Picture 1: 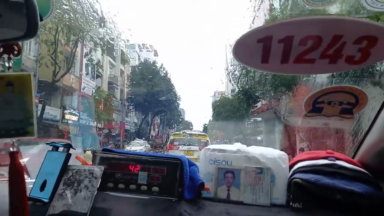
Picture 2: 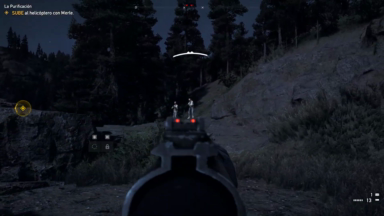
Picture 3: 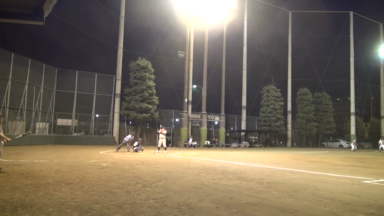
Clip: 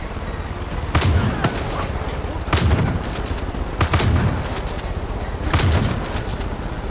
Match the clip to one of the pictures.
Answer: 2